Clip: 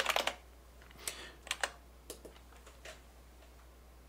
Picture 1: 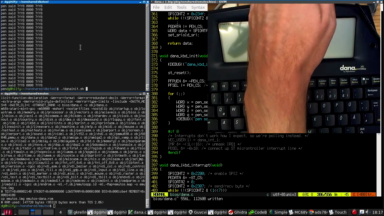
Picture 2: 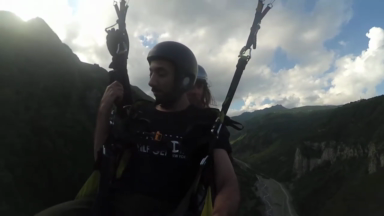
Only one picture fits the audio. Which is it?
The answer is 1